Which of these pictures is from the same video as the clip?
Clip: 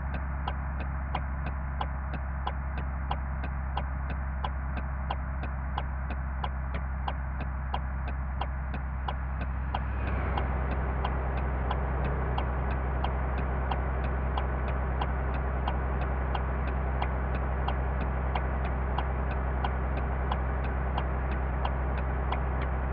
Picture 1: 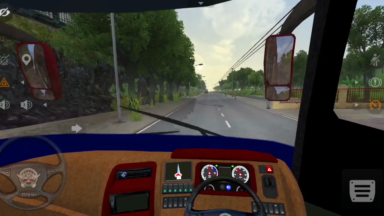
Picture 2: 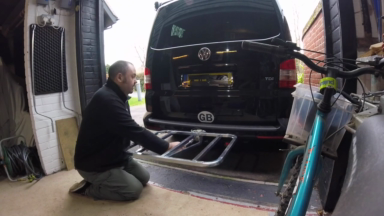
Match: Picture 1